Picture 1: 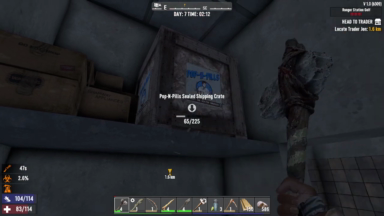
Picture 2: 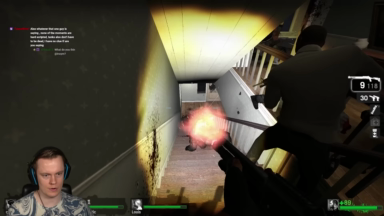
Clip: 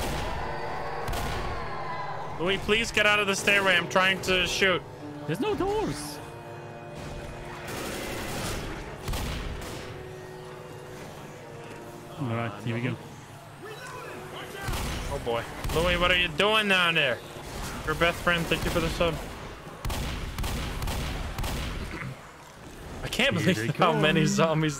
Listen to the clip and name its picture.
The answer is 2